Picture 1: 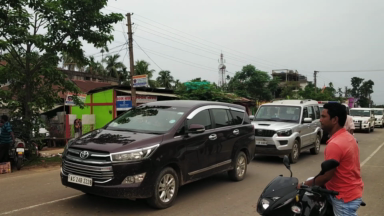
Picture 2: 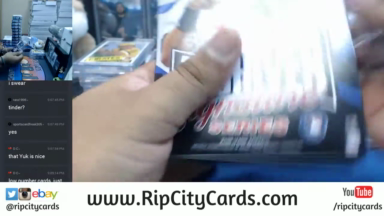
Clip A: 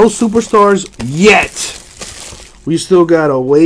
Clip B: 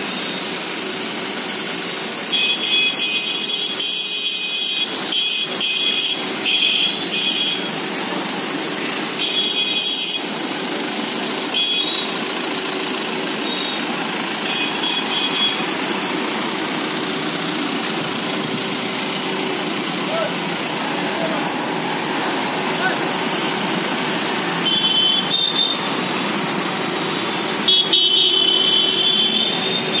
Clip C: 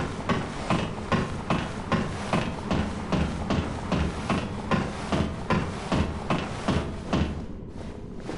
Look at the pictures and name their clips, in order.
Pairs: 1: B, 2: A